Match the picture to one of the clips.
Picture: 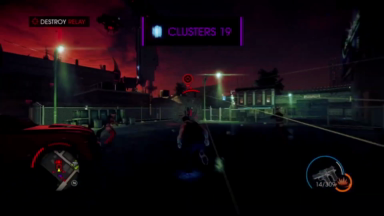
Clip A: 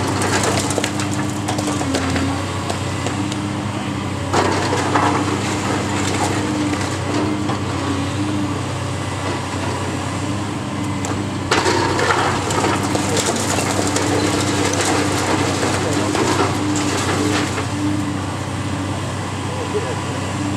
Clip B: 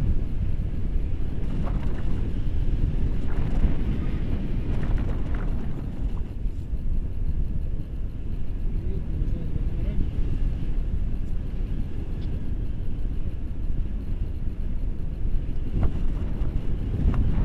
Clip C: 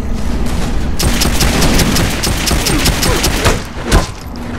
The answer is C